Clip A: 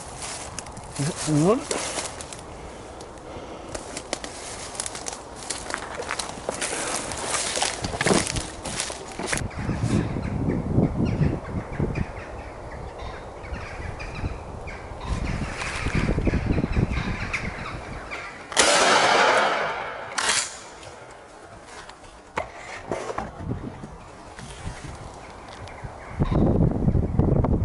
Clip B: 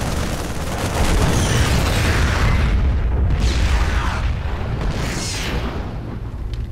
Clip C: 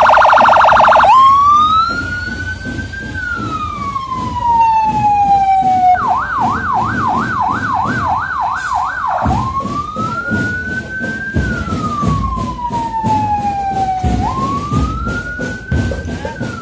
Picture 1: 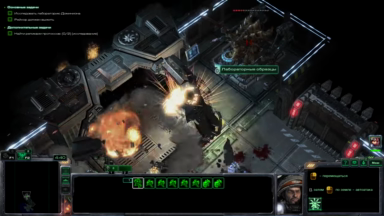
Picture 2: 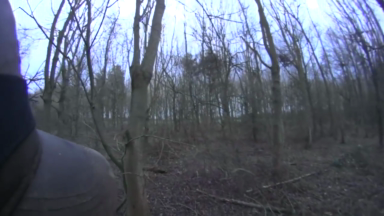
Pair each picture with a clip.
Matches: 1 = B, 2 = A